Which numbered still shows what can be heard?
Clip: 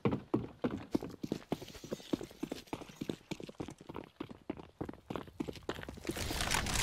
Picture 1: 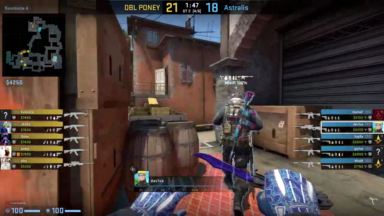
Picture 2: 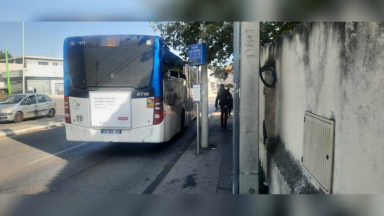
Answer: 1